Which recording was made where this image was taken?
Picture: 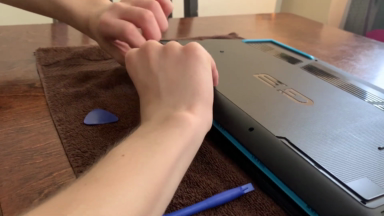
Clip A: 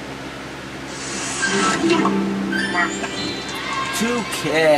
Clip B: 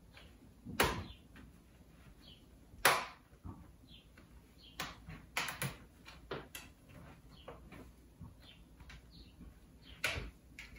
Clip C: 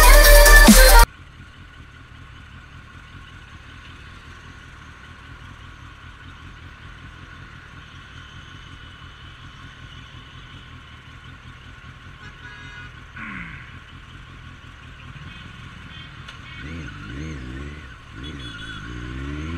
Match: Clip B